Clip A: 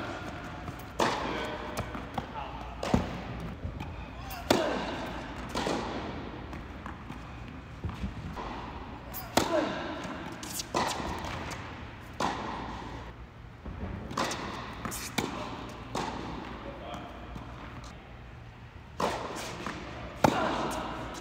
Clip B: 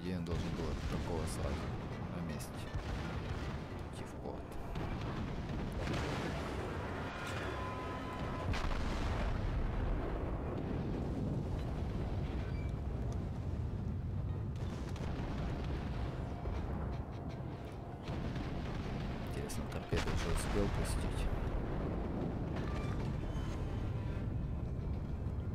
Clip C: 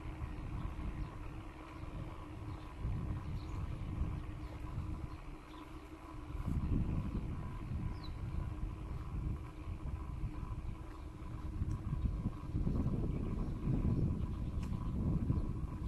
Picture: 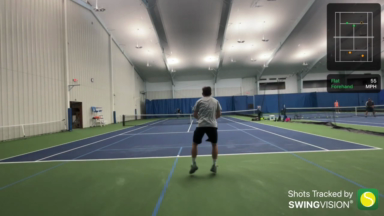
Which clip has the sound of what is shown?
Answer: A